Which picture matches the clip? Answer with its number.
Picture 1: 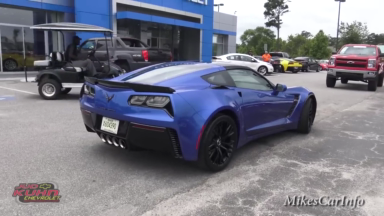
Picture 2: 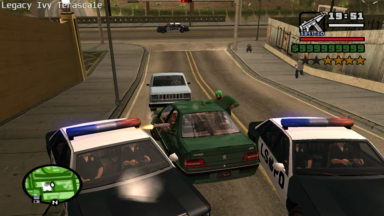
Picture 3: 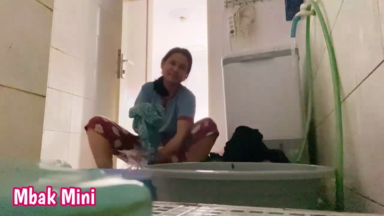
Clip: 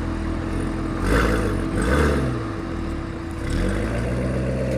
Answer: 1